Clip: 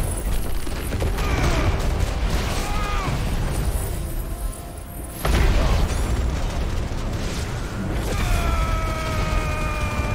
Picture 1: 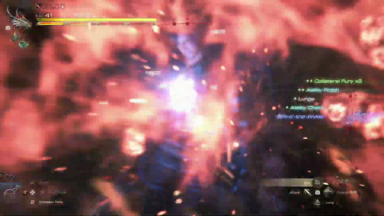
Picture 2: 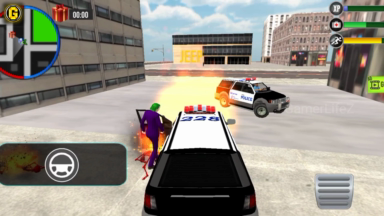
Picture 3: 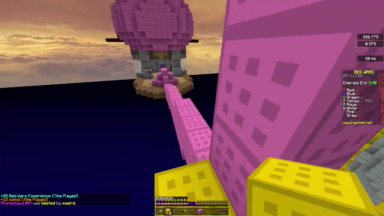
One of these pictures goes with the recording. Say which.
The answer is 1